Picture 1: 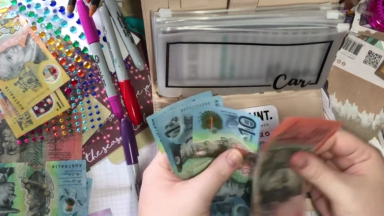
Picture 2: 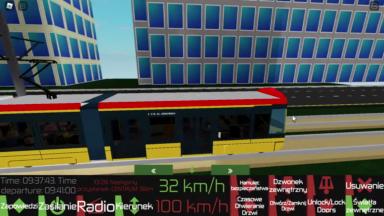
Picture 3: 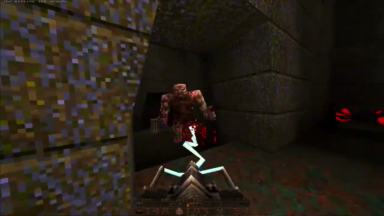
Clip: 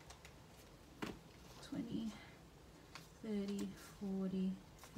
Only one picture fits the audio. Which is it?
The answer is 1